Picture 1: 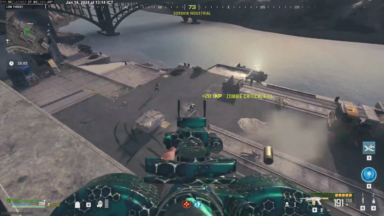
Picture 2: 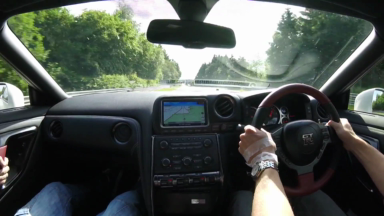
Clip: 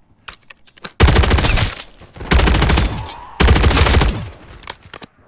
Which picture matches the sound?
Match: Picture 1